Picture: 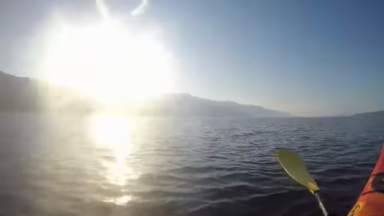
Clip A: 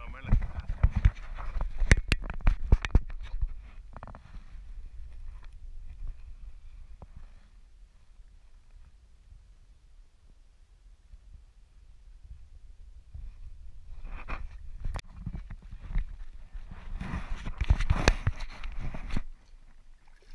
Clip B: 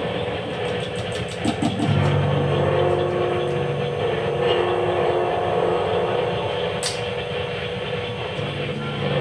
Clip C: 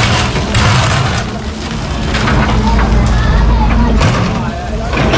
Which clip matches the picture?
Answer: A